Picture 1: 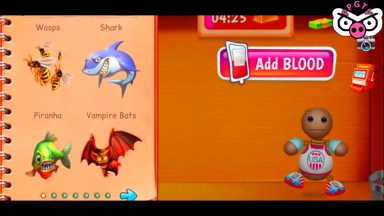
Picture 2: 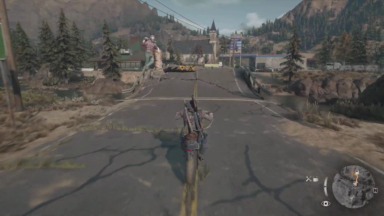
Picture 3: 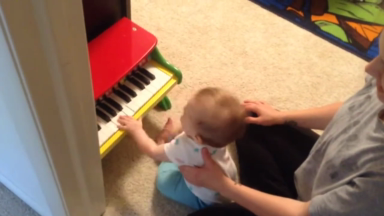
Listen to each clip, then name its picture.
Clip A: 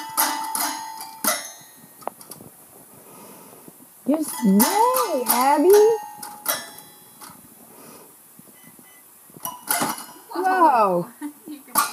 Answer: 3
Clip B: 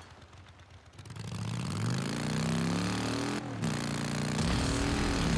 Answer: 2